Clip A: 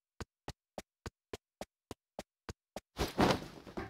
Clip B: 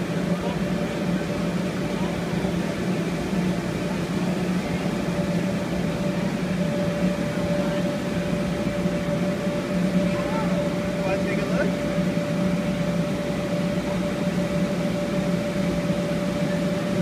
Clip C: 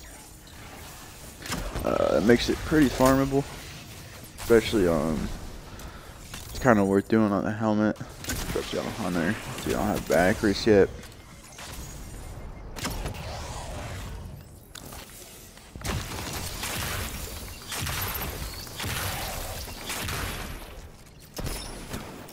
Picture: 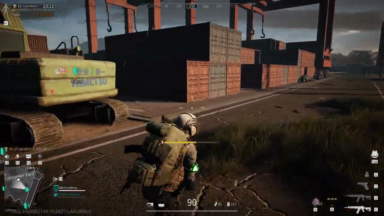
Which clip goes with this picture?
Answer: A